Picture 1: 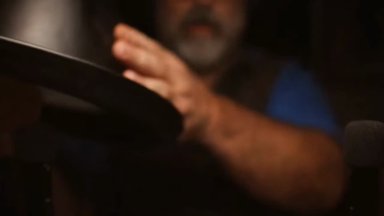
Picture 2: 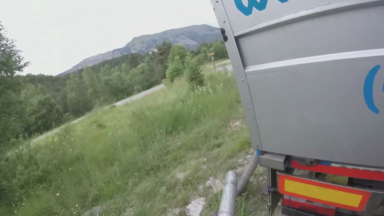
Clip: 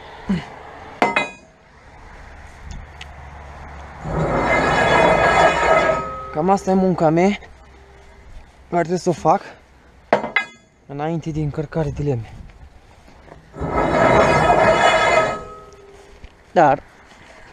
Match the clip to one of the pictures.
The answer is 2